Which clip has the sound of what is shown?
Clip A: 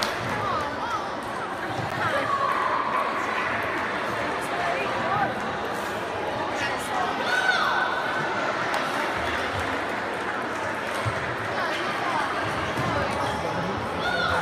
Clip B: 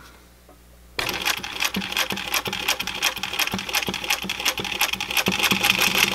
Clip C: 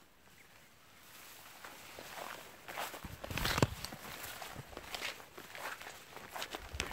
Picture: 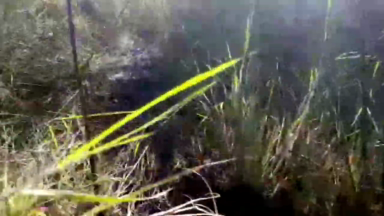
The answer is C